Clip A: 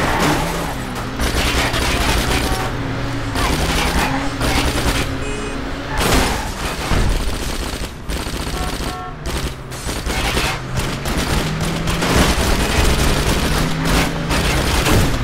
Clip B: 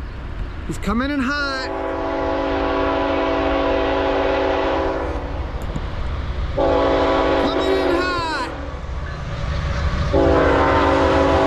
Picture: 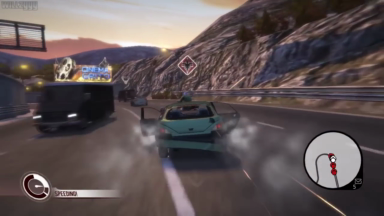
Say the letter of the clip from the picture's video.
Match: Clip A